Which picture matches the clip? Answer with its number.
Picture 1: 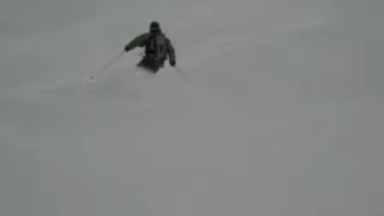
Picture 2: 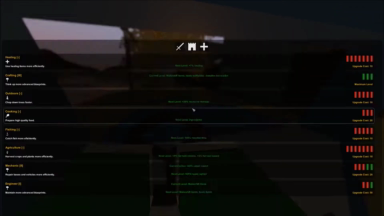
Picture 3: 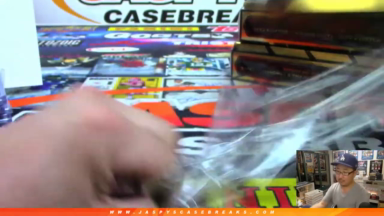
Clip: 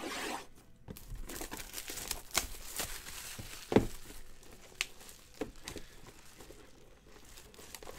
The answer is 3